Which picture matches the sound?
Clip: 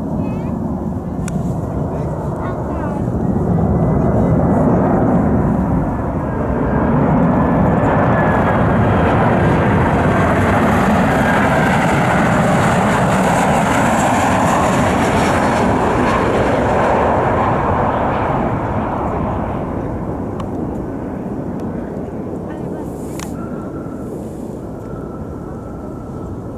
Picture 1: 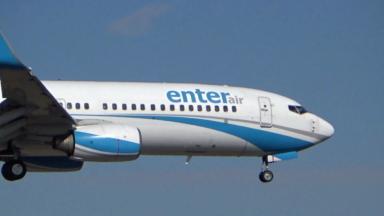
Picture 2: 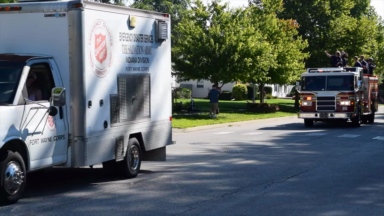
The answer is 1